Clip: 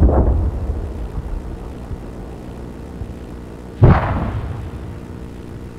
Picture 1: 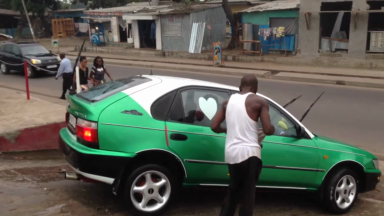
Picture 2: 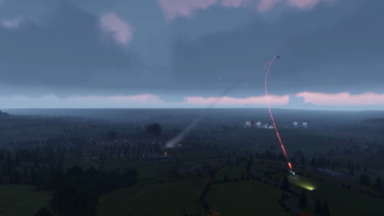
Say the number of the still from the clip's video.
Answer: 2